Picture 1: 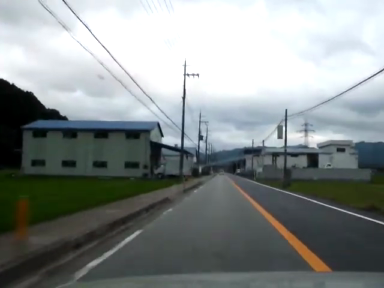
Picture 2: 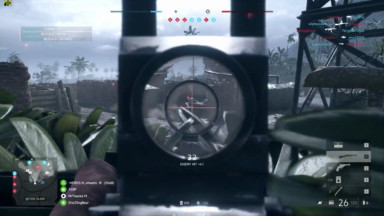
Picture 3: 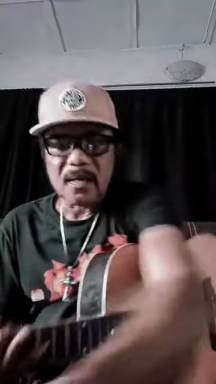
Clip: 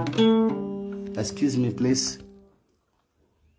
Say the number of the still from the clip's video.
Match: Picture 3